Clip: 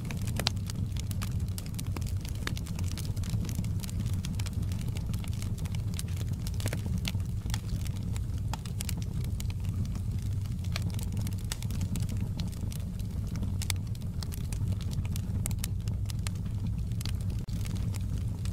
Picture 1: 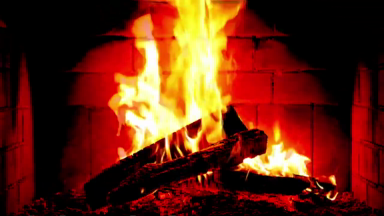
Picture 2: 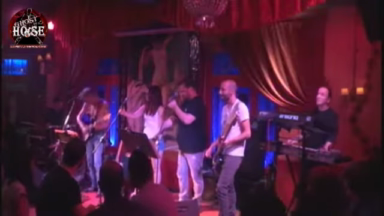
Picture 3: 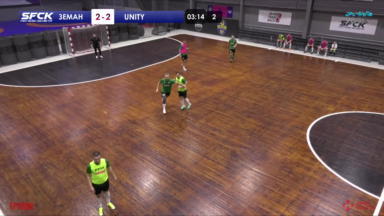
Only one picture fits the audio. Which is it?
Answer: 1